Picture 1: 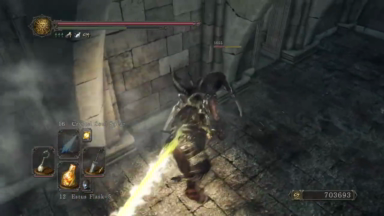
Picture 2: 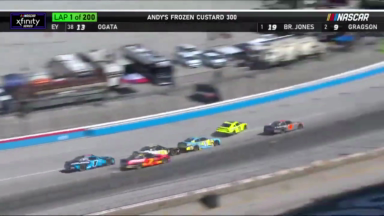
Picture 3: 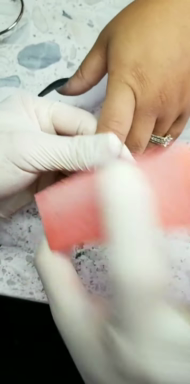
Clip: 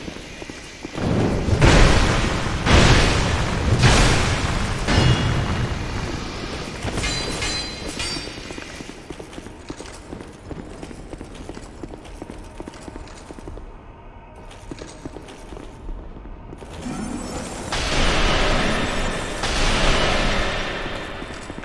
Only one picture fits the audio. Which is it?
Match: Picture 1